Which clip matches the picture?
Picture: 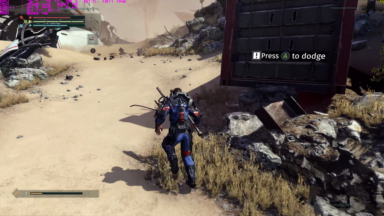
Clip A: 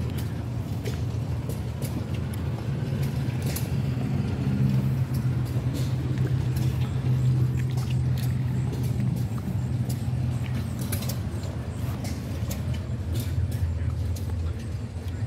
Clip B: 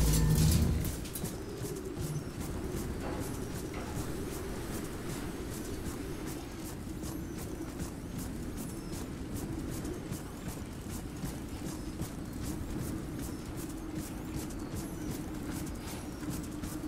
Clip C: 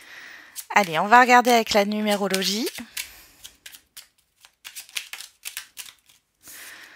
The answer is B